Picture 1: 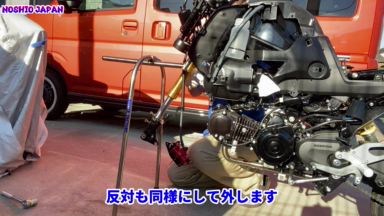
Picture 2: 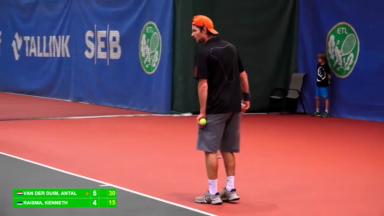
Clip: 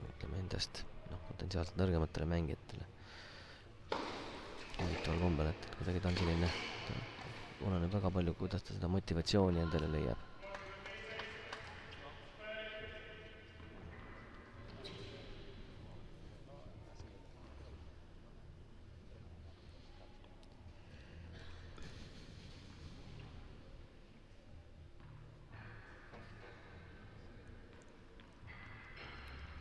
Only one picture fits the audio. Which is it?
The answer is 2